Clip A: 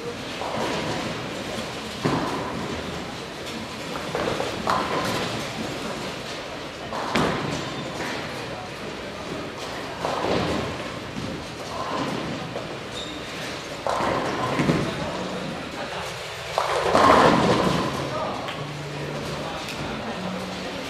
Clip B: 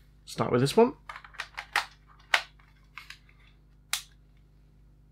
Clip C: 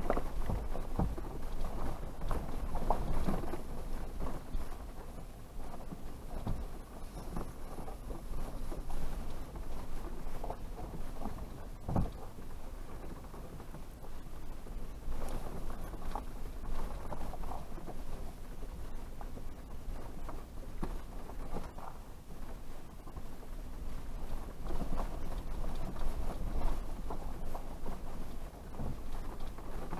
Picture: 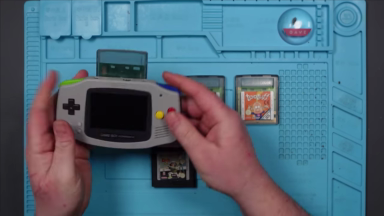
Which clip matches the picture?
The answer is B